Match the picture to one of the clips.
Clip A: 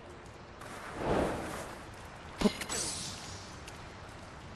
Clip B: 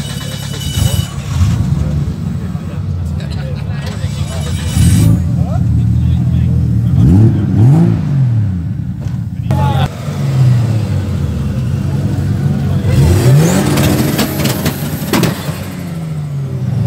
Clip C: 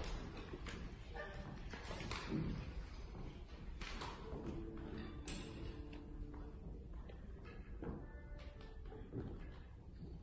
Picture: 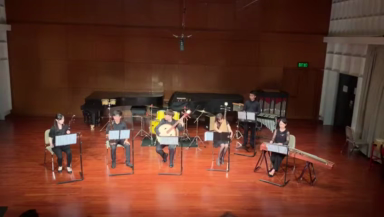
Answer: C